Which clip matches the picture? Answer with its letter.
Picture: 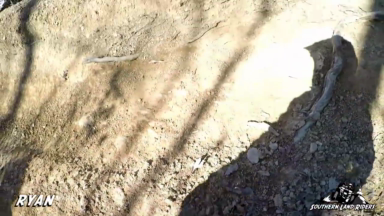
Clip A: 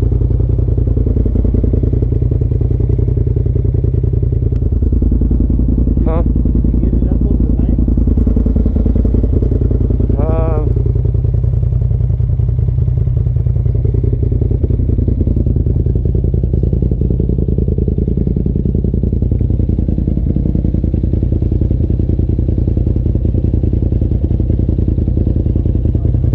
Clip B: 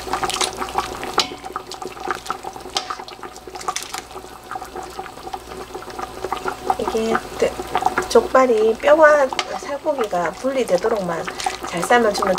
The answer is A